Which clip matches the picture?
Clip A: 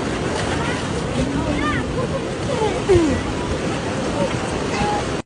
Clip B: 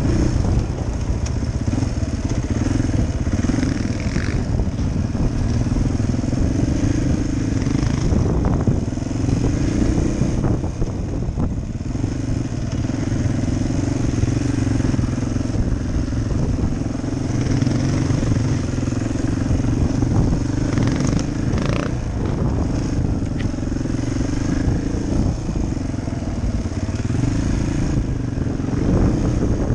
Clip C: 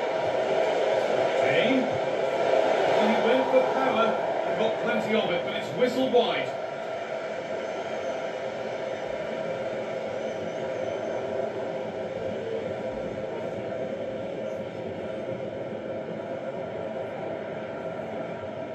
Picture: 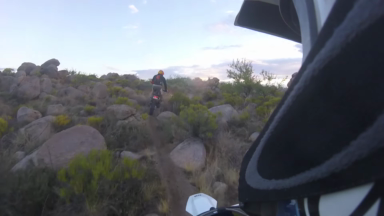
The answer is B